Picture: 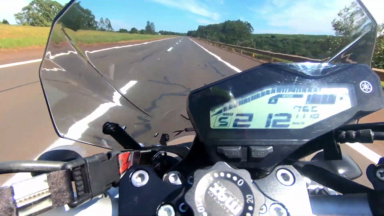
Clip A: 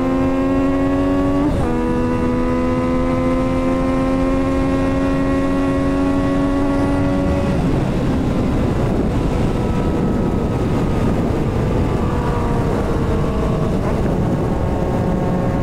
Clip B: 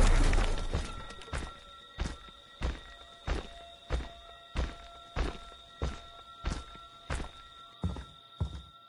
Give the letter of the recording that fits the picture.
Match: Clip A